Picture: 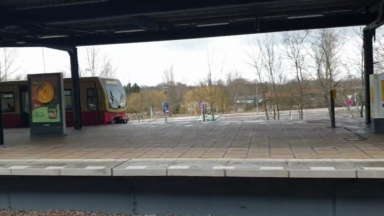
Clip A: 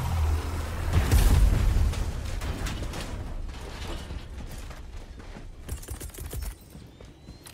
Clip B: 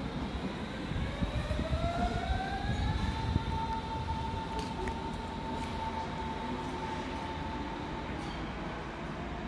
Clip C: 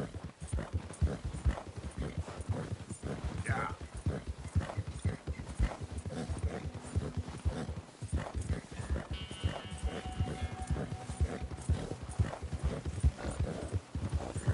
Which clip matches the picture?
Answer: B